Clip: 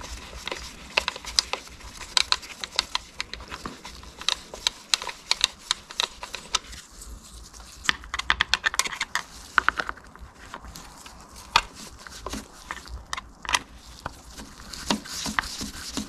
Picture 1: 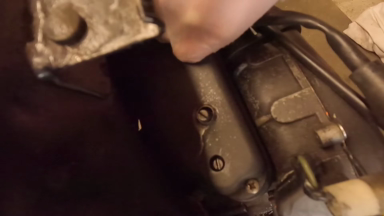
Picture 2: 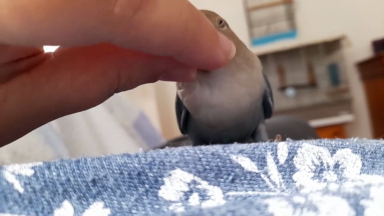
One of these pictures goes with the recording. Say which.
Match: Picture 1